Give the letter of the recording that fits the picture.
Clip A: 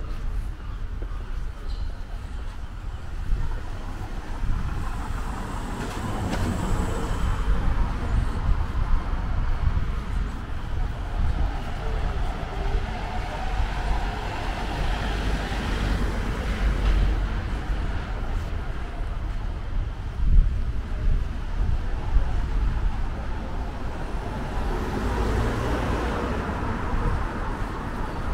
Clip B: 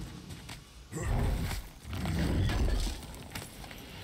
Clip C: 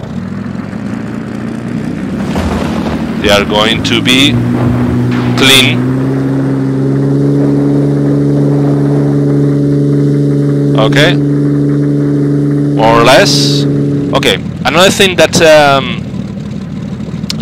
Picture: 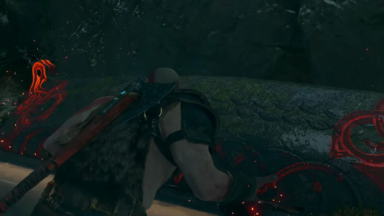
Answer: B